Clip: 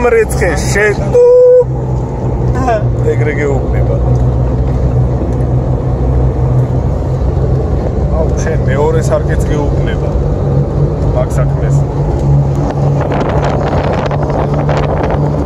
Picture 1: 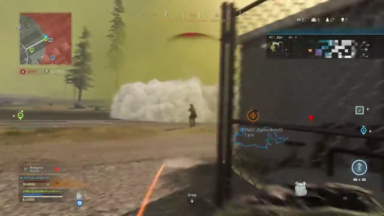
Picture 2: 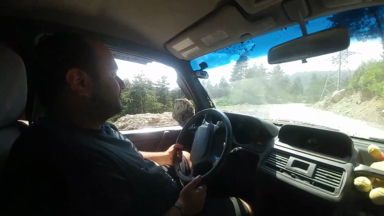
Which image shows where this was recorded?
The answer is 2